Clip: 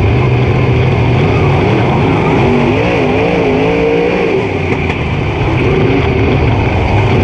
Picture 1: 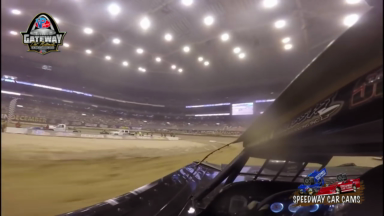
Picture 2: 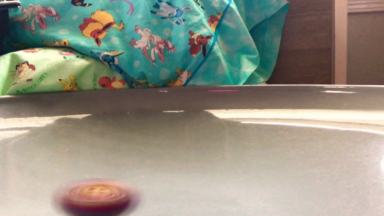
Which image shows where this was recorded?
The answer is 1